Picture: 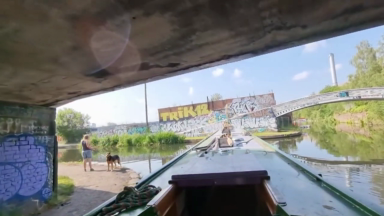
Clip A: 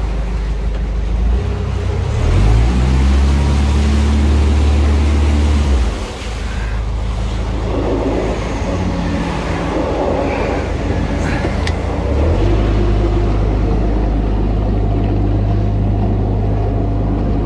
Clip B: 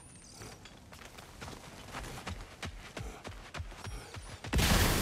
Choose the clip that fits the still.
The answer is A